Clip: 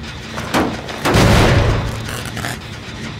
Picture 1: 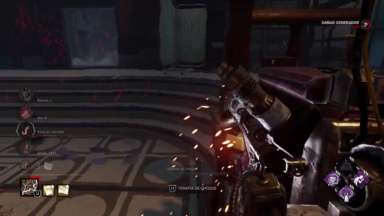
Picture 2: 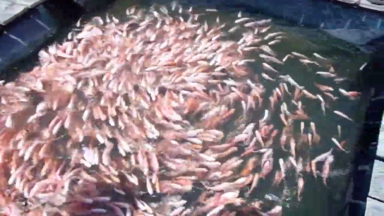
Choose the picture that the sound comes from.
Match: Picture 1